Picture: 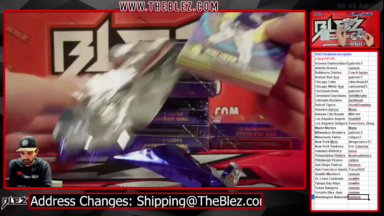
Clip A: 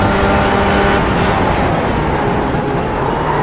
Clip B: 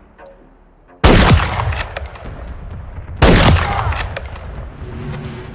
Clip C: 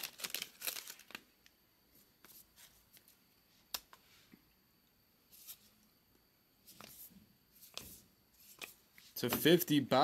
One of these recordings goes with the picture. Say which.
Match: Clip C